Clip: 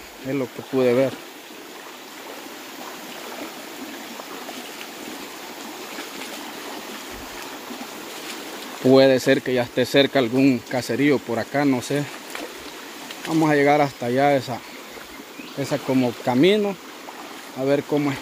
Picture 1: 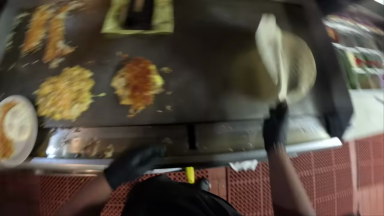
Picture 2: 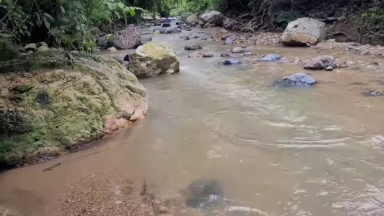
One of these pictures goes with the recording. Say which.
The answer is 2